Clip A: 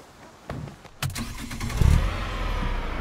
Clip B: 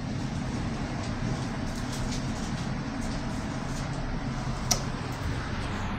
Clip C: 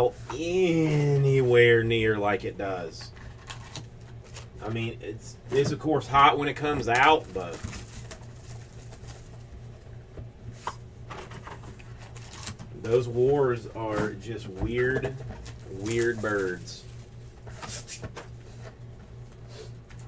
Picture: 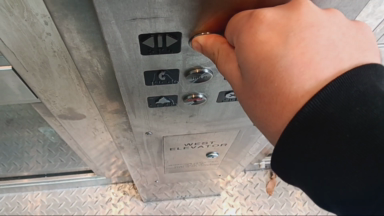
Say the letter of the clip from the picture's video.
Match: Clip B